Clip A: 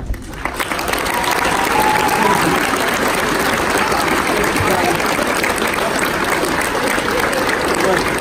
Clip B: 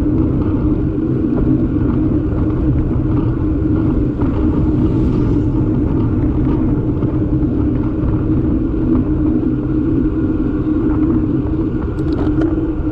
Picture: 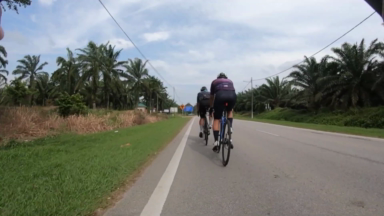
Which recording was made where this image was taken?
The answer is B